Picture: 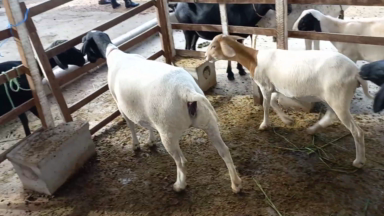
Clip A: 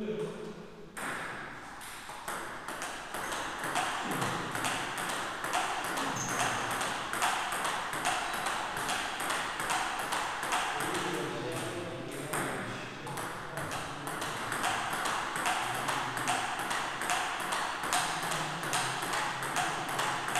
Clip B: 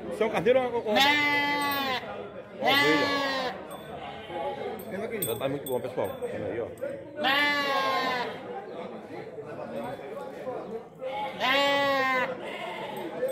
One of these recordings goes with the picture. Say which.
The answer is B